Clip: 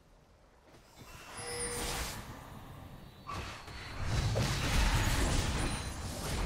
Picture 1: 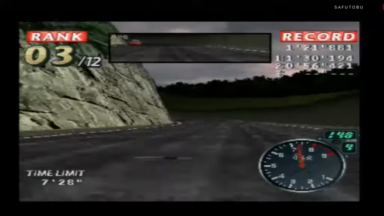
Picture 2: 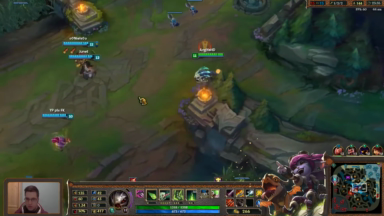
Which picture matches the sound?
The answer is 2